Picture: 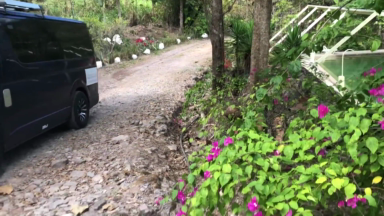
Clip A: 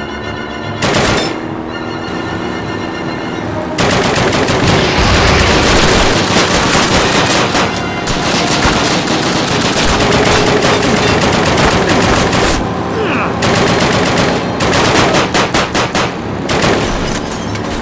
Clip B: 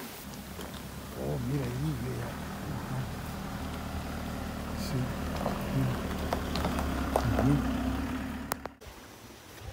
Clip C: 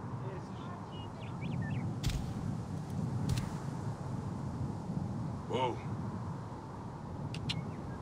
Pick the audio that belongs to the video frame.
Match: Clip B